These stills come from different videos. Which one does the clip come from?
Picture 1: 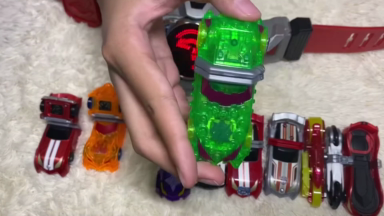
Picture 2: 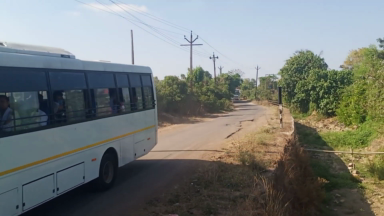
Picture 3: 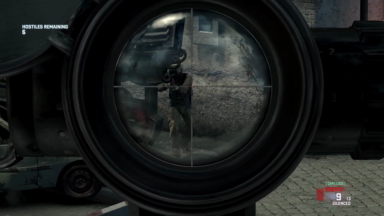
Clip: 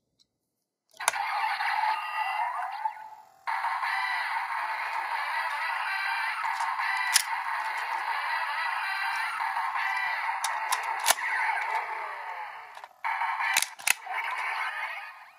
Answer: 1